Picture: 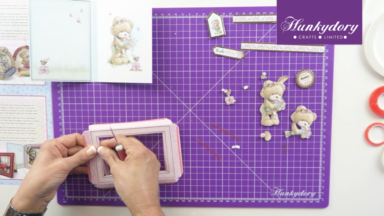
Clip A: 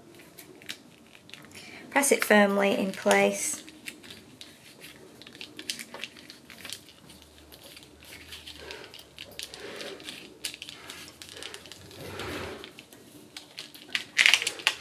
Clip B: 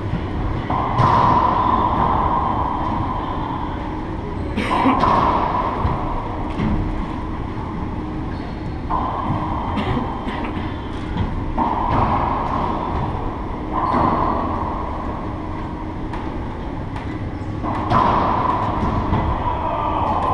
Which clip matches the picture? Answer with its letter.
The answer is A